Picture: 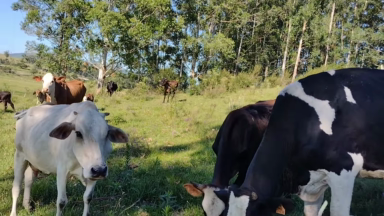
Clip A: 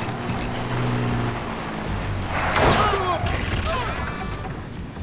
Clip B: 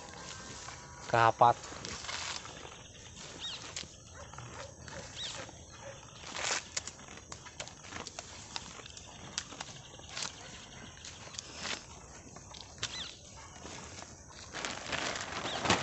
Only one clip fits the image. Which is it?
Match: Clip B